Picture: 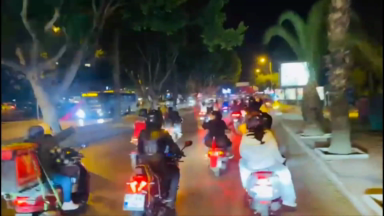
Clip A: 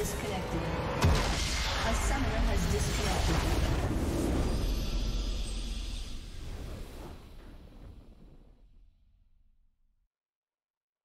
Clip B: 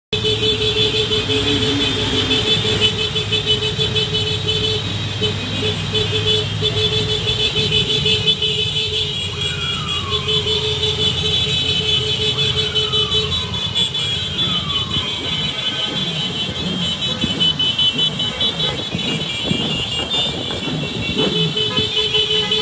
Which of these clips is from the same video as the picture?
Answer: B